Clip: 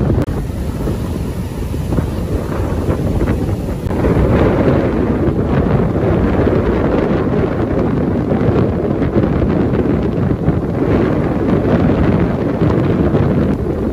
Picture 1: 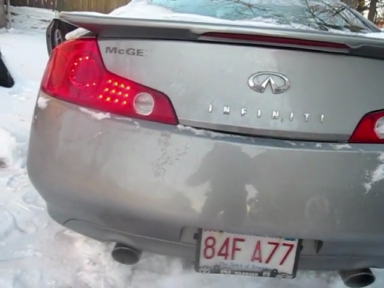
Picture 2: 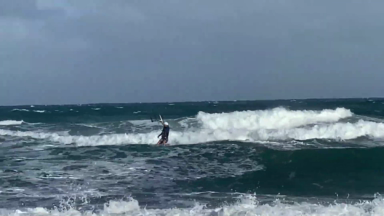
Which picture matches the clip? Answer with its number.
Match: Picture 2